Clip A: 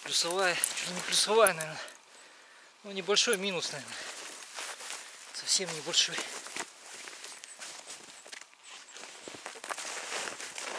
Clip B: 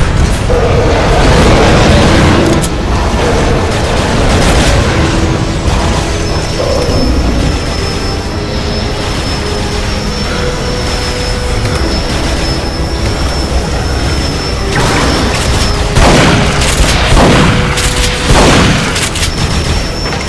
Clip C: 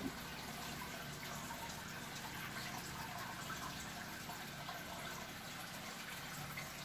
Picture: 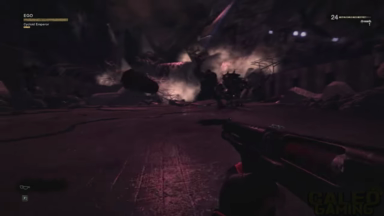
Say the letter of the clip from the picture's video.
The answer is B